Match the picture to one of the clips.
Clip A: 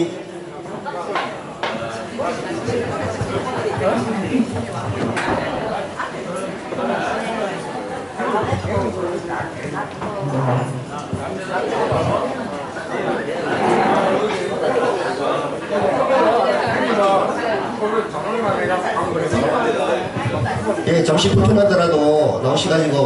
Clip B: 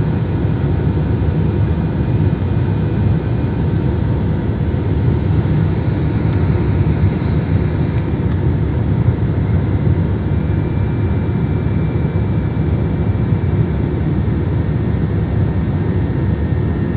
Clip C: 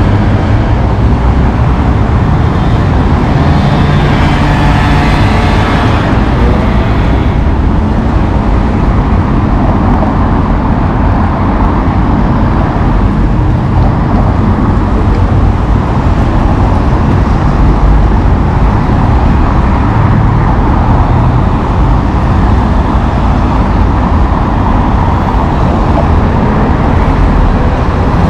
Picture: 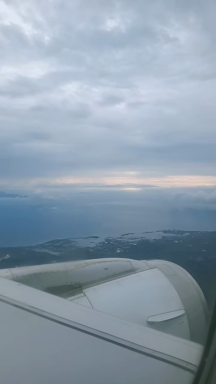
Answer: B